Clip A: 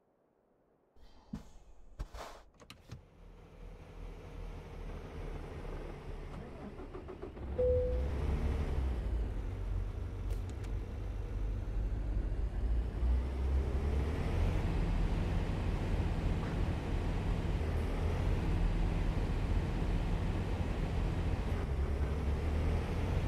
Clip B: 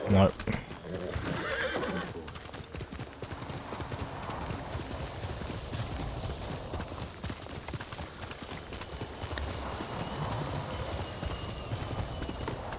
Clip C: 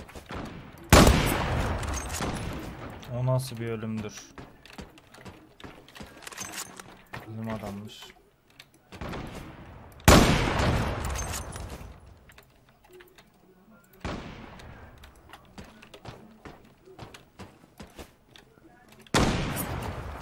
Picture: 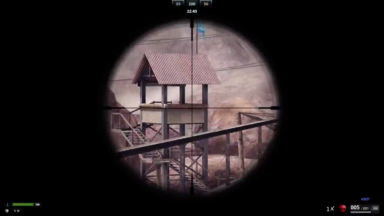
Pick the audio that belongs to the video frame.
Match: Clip C